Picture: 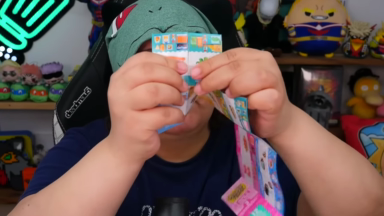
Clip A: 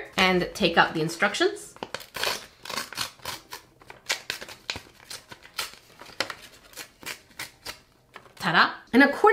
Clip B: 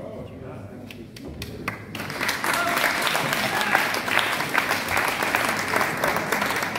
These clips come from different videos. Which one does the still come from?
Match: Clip A